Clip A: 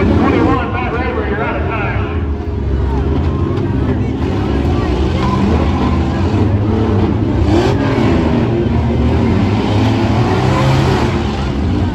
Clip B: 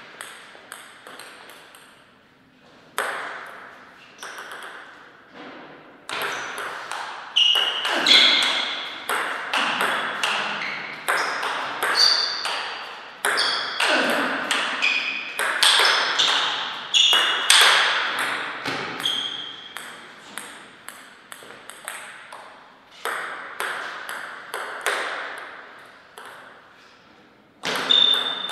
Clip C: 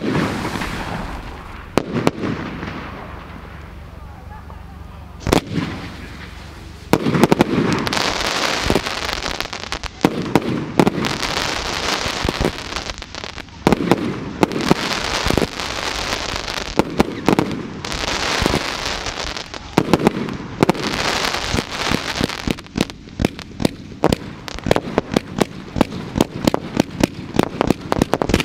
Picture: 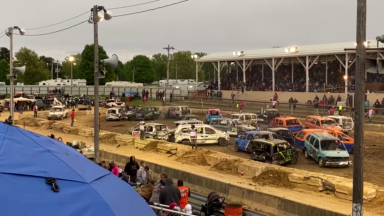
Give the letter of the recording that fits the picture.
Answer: A